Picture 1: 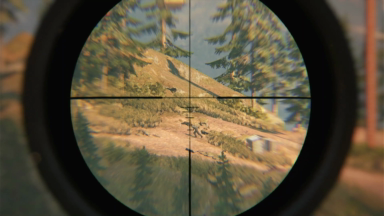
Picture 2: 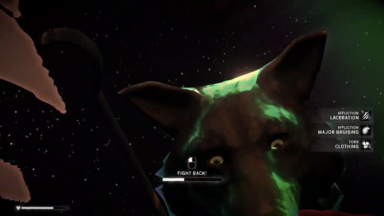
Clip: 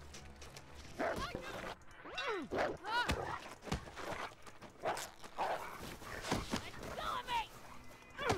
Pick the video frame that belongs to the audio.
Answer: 2